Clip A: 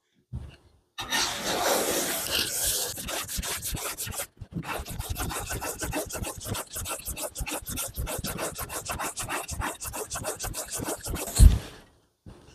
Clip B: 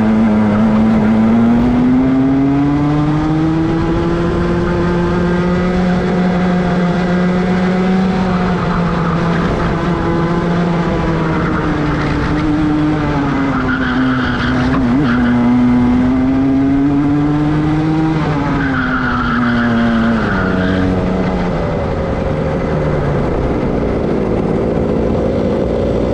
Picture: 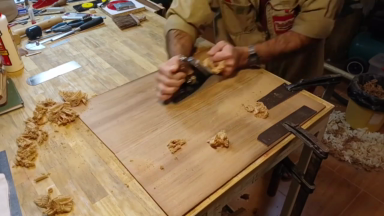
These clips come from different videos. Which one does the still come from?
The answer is A